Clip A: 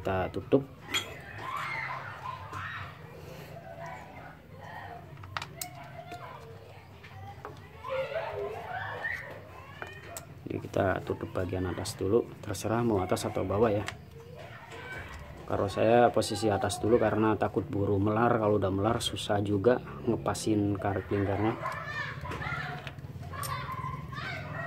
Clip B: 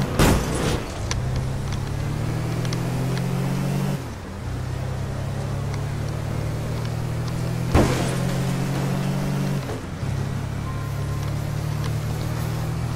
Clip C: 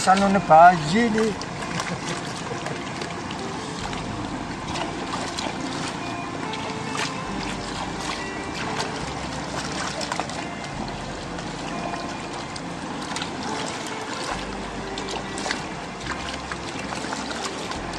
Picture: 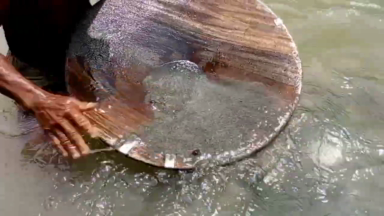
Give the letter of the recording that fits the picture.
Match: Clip C